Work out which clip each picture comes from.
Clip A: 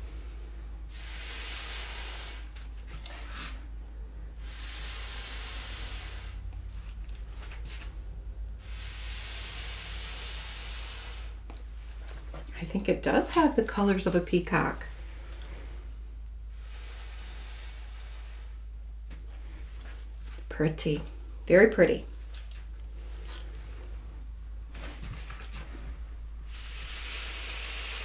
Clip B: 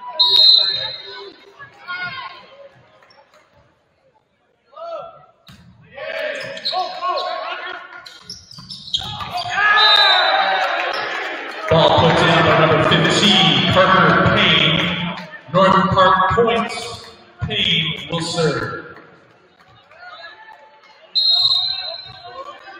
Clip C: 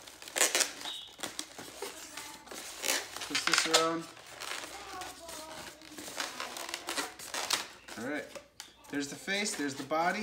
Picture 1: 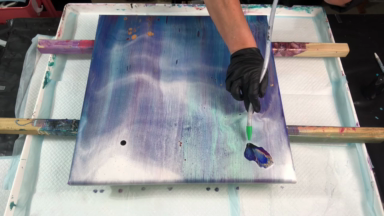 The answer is A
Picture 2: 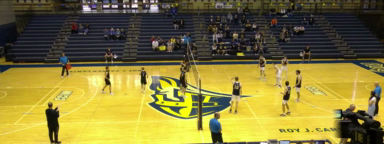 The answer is B